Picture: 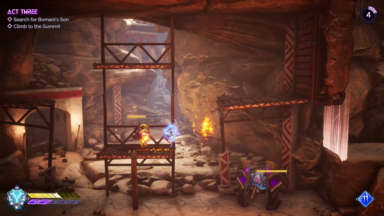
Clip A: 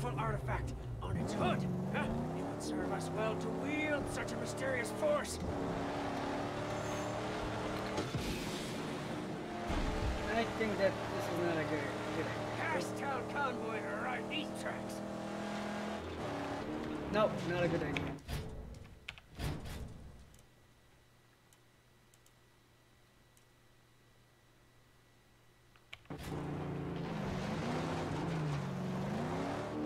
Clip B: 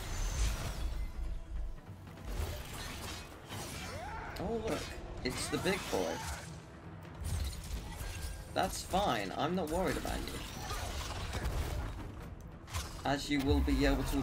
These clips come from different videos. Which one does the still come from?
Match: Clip B